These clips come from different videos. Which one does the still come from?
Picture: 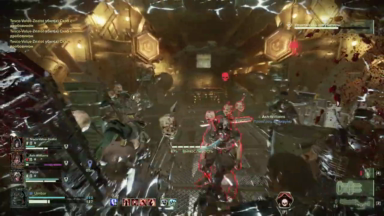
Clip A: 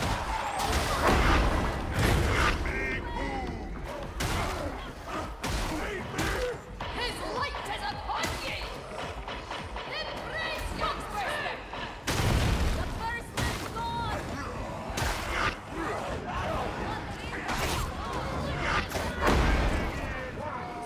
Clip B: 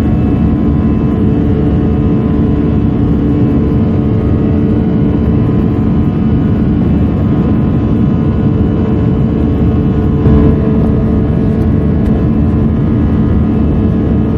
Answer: A